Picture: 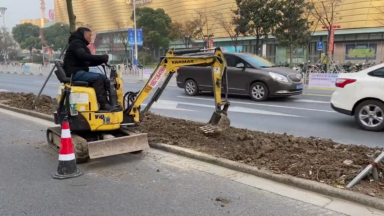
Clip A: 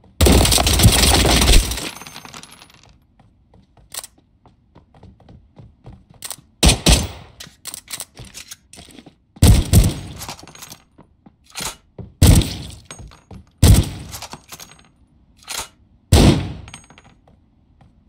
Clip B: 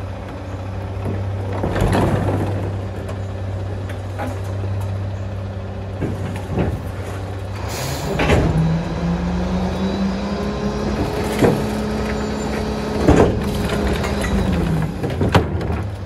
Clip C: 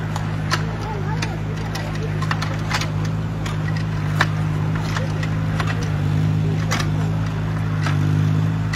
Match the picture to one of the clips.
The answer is C